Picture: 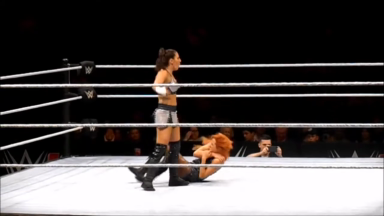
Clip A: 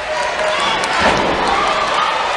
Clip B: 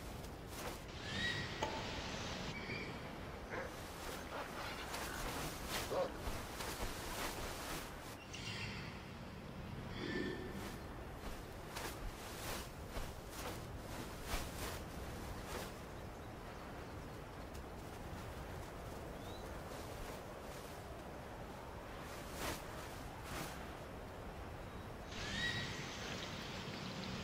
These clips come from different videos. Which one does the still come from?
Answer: A